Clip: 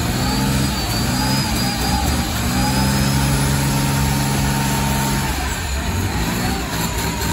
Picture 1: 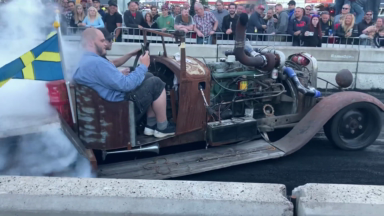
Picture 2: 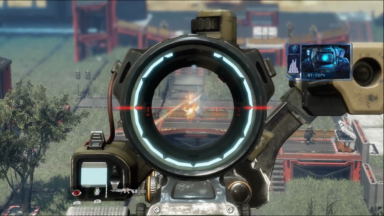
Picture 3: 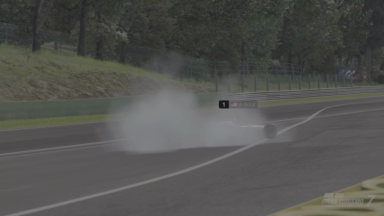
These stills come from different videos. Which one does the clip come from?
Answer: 1